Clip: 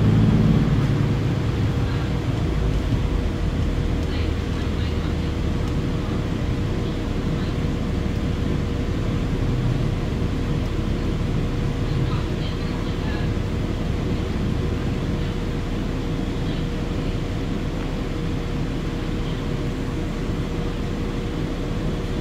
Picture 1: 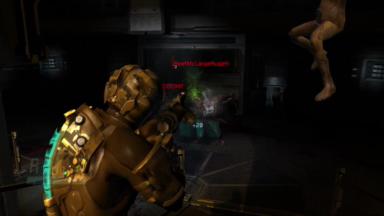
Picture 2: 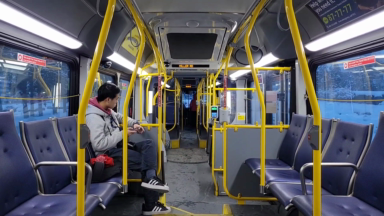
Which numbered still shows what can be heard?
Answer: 2